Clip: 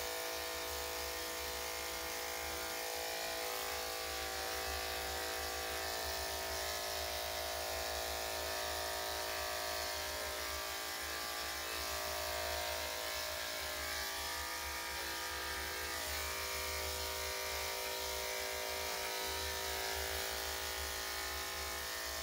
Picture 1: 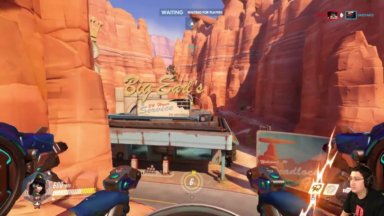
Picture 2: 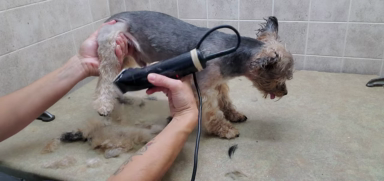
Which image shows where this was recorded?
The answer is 2